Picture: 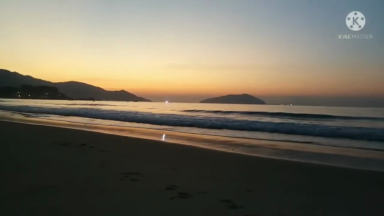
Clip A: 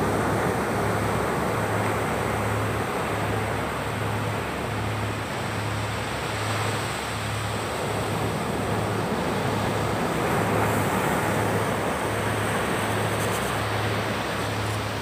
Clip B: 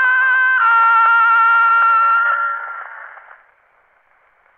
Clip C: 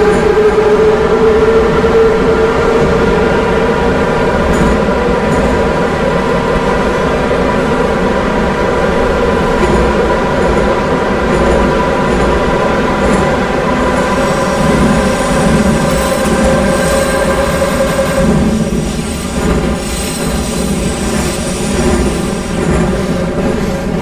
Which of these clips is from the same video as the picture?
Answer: A